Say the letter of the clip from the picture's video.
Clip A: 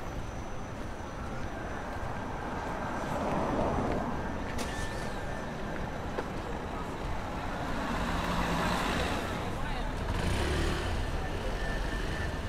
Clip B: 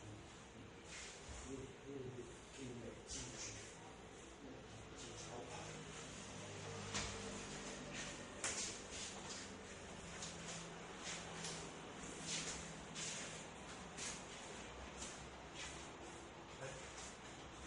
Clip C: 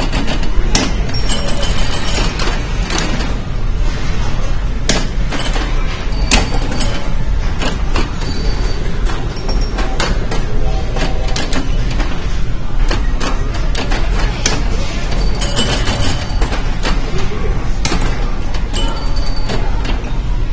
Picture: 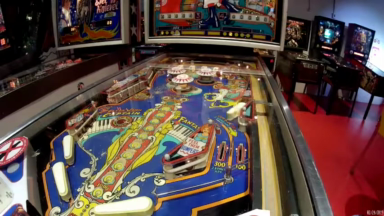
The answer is C